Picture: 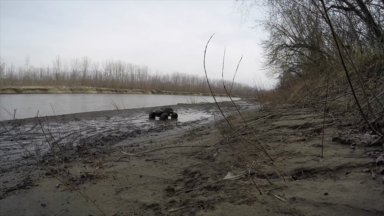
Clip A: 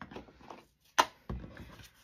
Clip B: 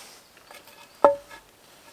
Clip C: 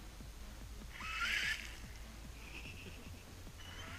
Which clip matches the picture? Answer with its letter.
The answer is C